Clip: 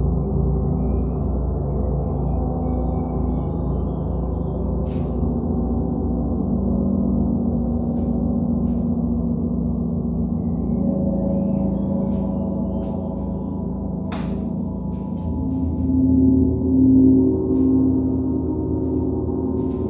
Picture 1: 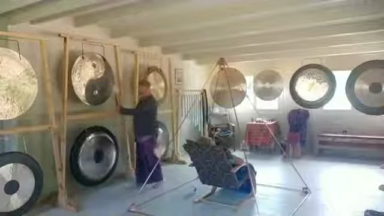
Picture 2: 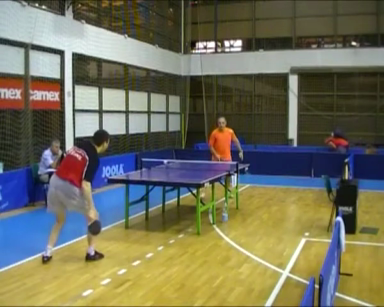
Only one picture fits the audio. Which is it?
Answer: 1